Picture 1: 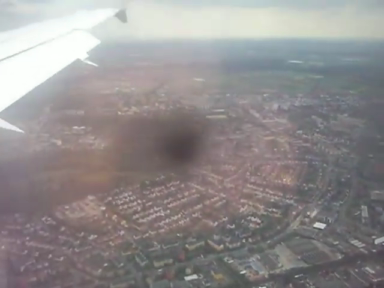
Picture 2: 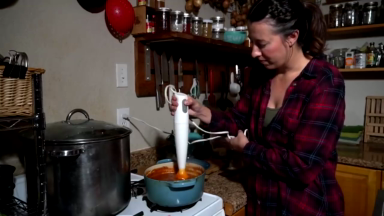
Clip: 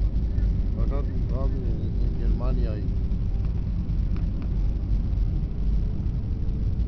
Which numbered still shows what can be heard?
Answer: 1